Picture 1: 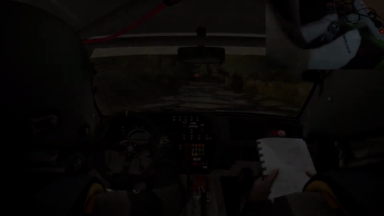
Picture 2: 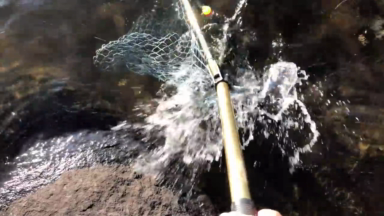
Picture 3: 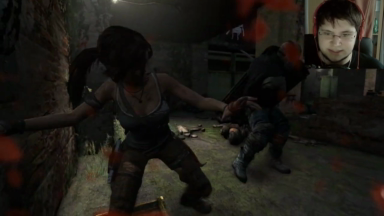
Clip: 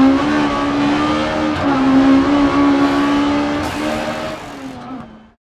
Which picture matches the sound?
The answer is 1